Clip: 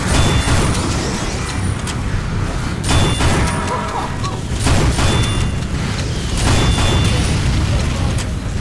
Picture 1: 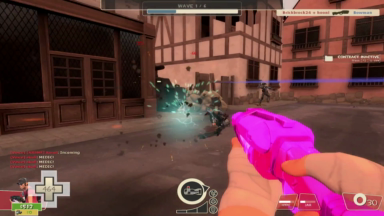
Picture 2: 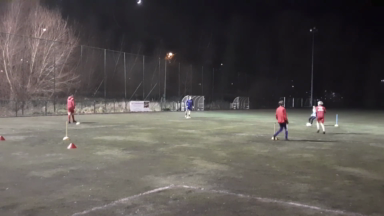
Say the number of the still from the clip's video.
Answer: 1